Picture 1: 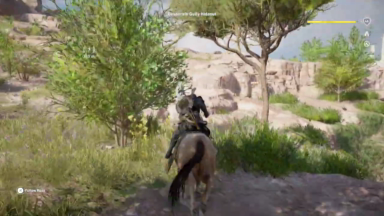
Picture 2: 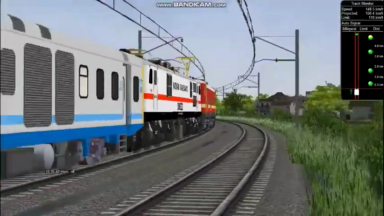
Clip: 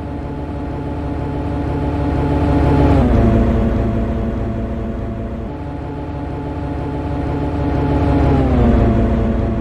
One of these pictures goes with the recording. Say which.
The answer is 2